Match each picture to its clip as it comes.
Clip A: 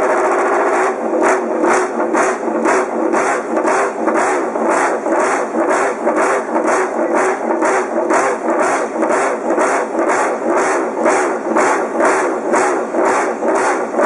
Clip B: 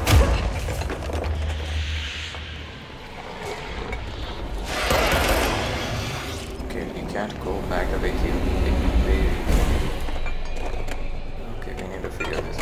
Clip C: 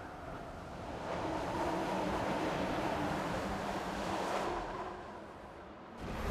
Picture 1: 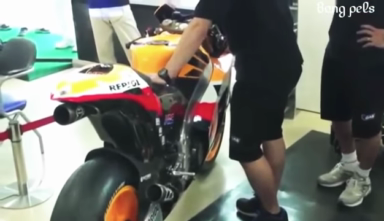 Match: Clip A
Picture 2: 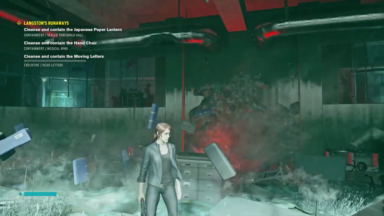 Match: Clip B